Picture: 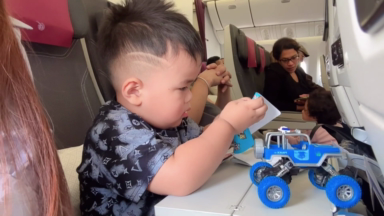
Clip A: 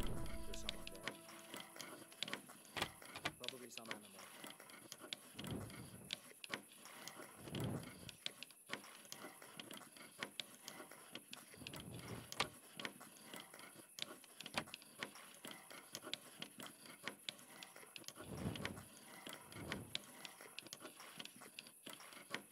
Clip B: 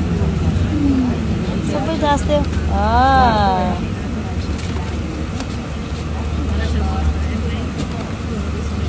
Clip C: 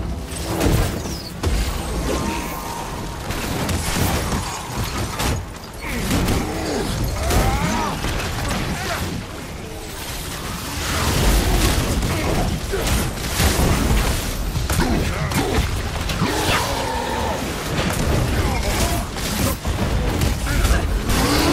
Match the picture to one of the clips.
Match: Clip B